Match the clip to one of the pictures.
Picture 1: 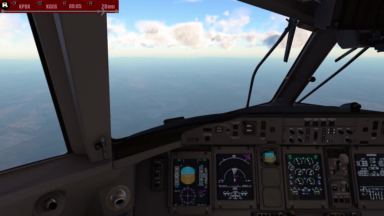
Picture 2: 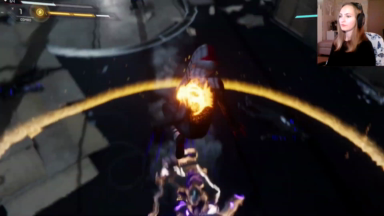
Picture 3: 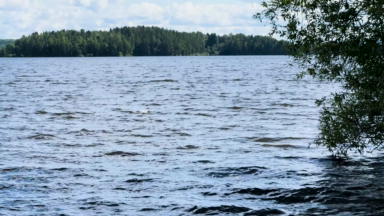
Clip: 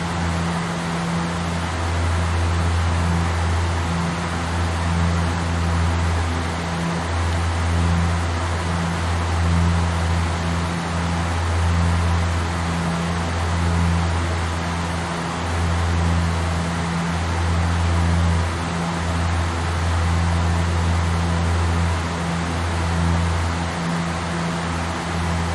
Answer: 1